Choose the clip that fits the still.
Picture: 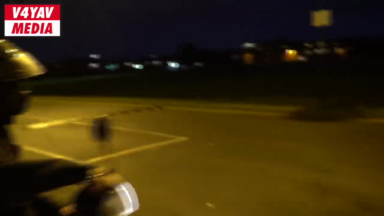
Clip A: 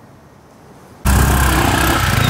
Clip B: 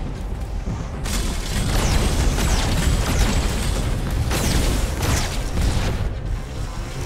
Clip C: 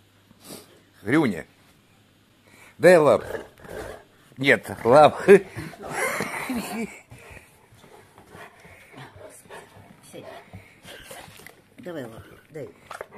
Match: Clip A